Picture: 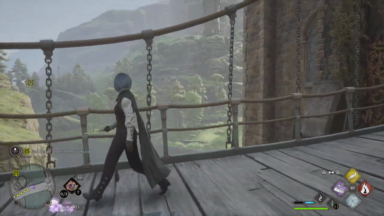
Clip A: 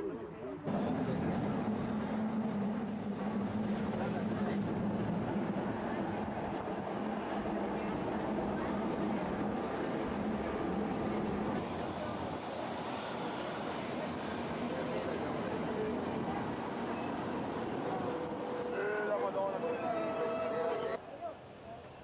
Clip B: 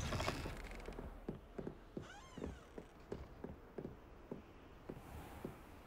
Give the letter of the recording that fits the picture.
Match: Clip B